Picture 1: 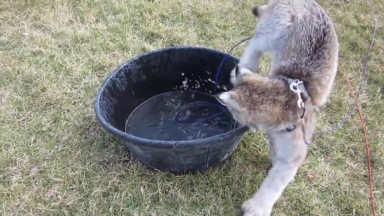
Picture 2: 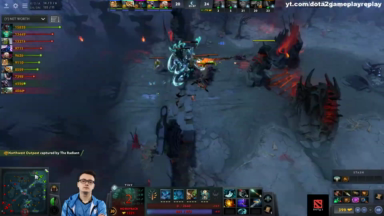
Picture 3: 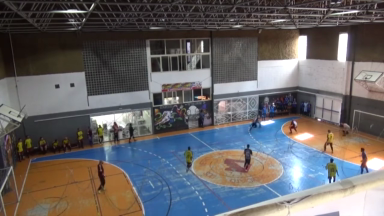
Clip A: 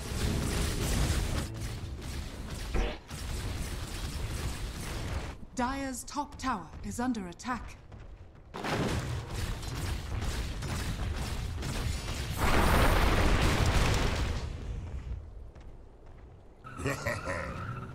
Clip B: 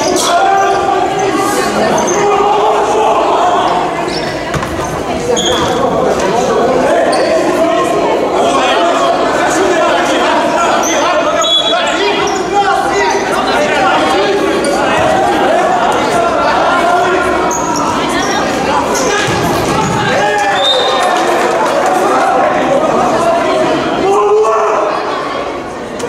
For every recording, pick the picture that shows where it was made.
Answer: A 2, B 3